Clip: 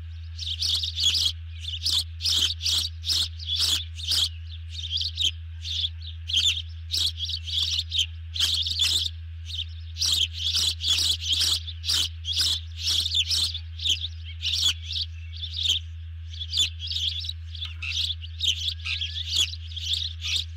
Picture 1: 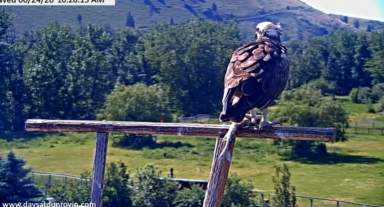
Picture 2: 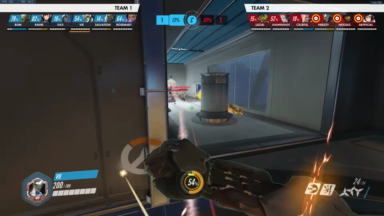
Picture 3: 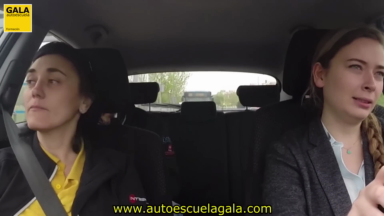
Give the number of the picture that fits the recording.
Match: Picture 1